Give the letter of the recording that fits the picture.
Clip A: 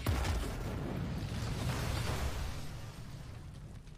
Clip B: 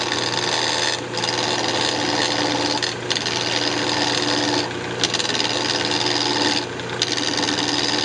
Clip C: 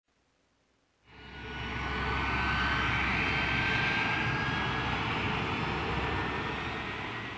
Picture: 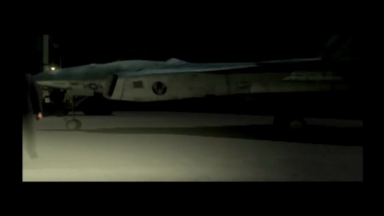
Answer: C